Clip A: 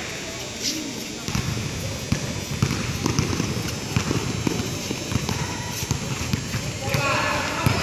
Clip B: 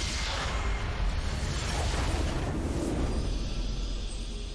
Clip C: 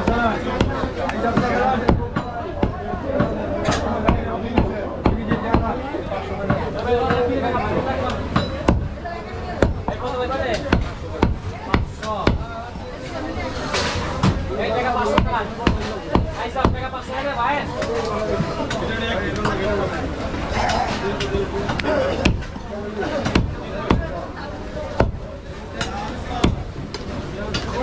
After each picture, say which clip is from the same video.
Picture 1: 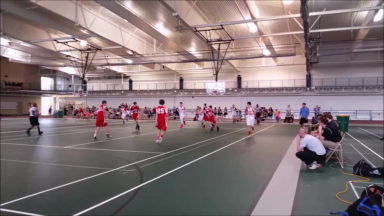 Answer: A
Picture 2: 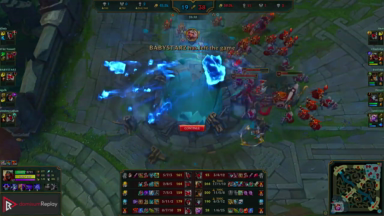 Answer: B